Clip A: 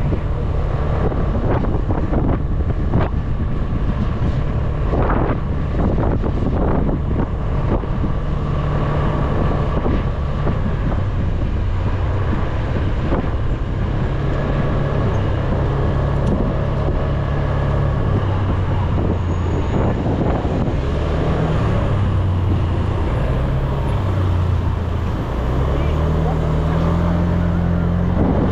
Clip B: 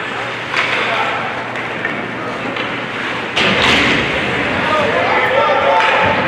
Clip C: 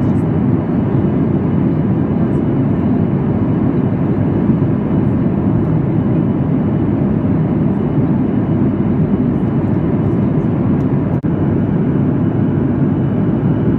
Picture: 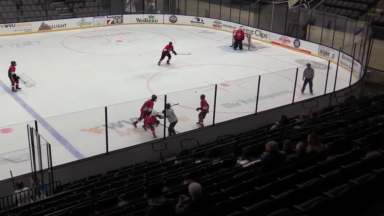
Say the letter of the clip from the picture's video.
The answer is B